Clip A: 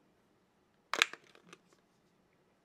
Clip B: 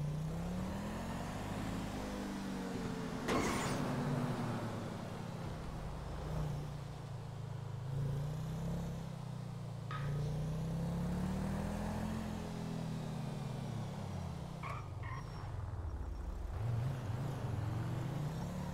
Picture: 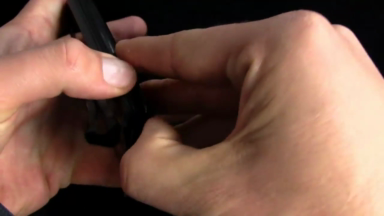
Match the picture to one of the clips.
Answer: A